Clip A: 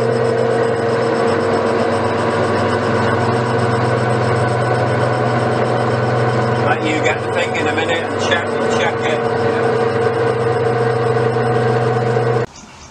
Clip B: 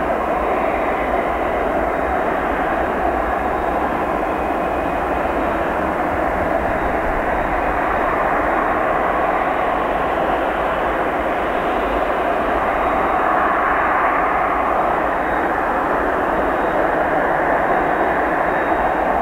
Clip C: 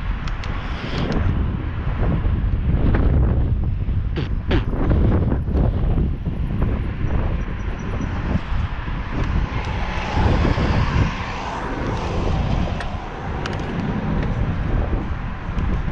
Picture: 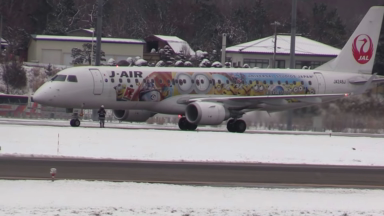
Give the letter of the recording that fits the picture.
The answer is B